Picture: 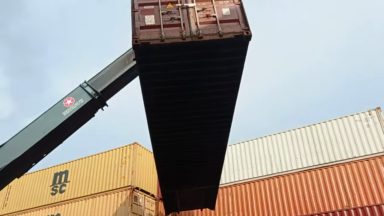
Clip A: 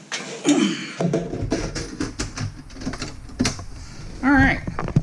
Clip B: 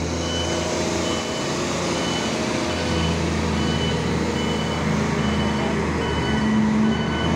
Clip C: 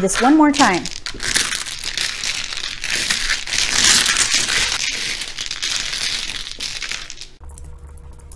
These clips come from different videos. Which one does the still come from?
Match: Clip B